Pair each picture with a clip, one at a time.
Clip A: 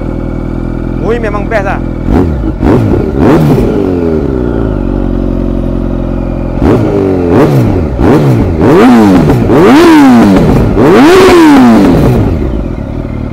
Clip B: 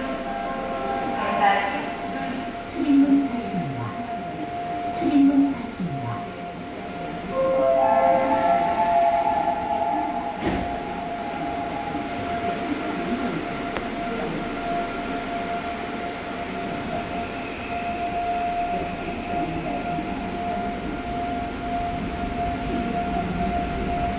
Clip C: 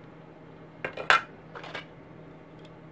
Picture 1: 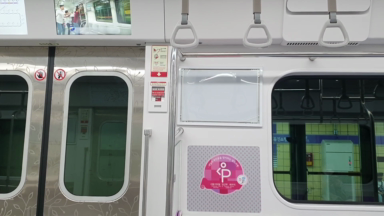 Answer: B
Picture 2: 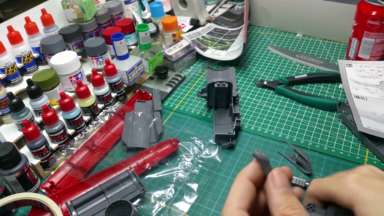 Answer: C